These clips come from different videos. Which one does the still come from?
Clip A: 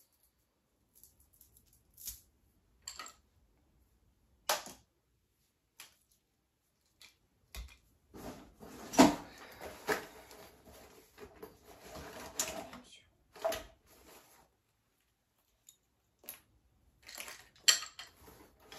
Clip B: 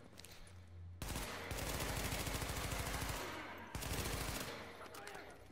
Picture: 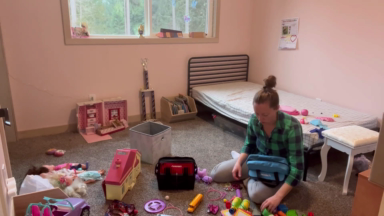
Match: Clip A